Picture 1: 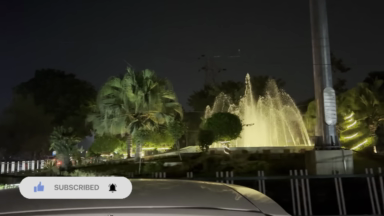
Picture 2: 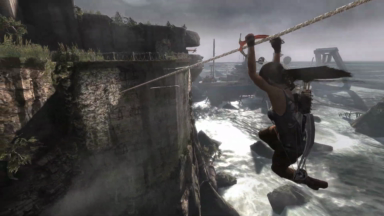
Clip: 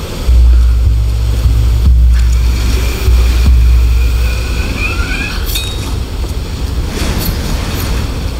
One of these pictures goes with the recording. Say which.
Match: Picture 2